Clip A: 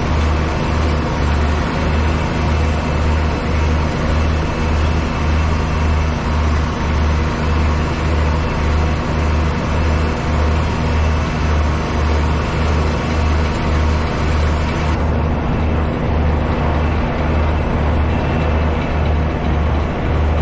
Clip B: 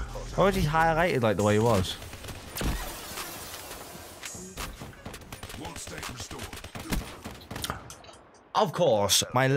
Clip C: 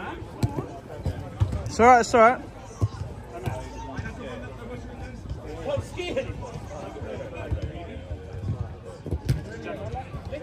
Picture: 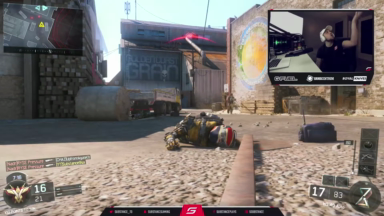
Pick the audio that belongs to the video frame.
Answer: B